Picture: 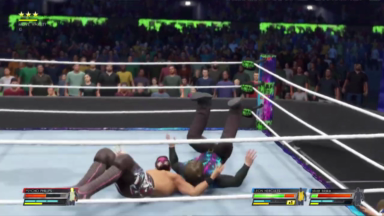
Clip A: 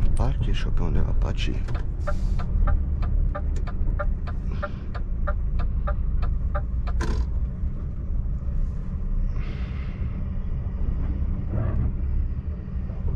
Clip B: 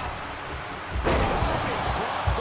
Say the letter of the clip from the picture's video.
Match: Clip B